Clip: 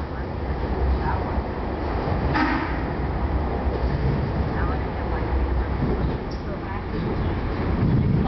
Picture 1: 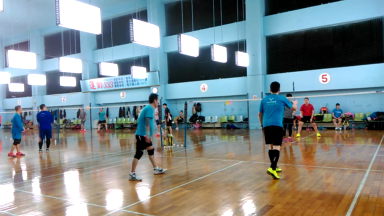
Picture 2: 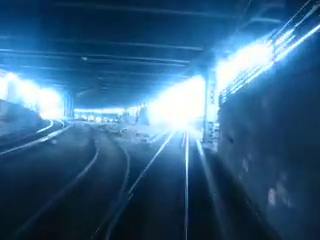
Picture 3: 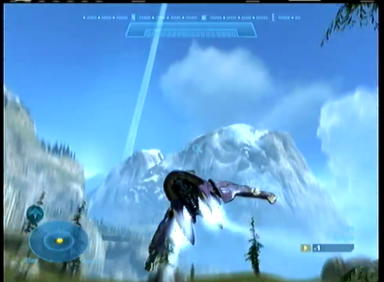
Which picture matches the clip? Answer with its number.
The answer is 2